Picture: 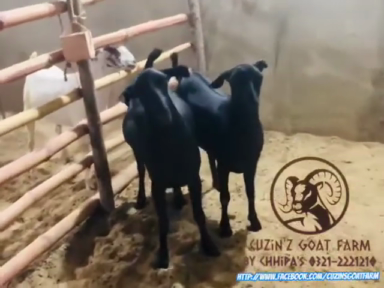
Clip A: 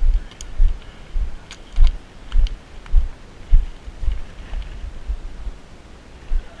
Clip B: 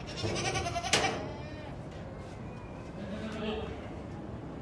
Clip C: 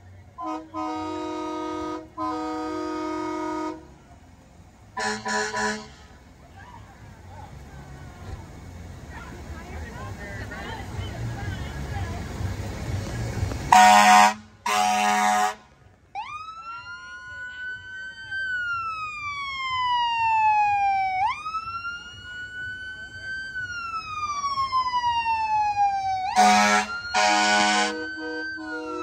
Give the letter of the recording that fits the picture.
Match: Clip B